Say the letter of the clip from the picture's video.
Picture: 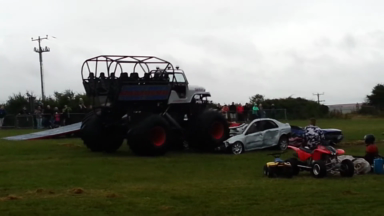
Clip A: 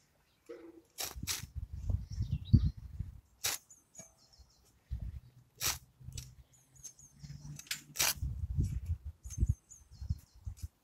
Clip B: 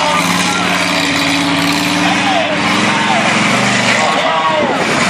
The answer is B